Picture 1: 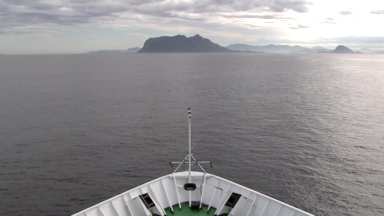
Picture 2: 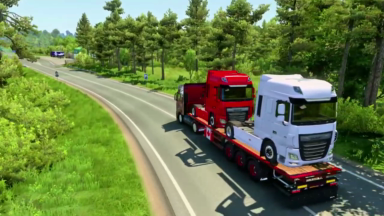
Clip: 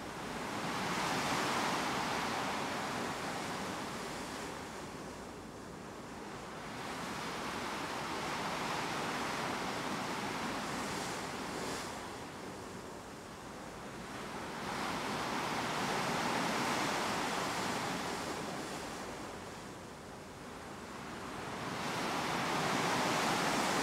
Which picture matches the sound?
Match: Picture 1